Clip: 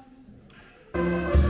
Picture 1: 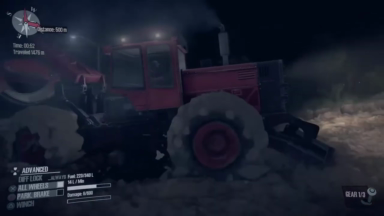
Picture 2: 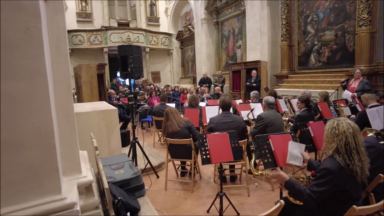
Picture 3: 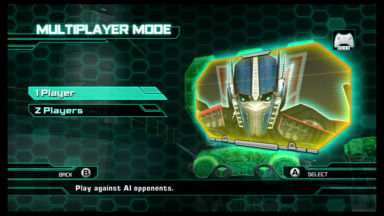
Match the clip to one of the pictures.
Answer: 2